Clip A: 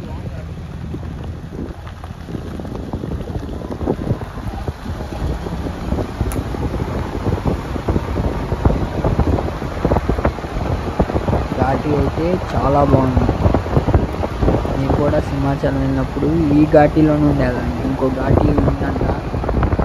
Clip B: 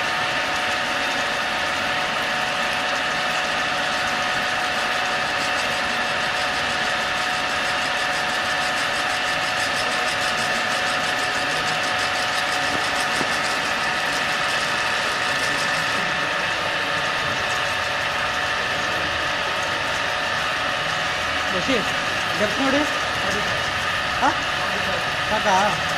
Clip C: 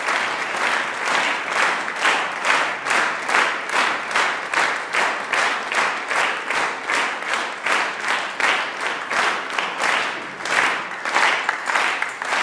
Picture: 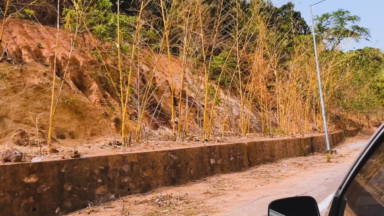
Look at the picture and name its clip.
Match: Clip A